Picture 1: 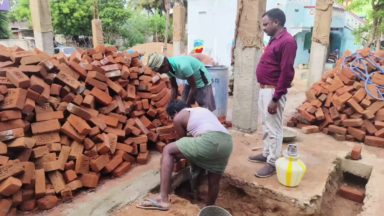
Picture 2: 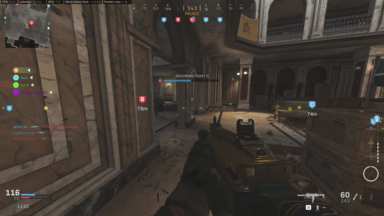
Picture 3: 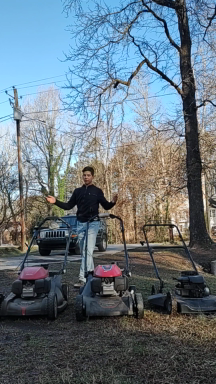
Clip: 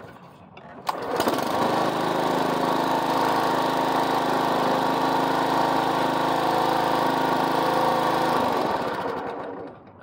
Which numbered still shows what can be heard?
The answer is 3